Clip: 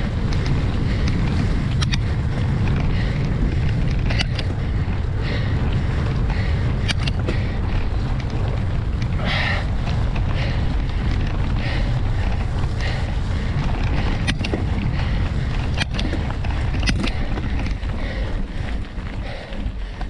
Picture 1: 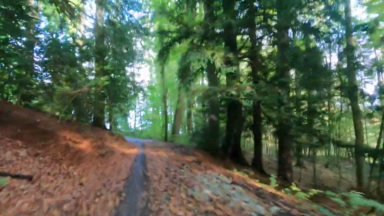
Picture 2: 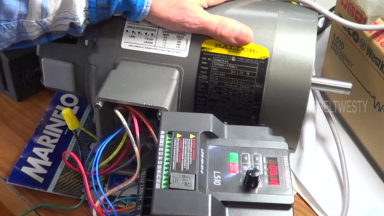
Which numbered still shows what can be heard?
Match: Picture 1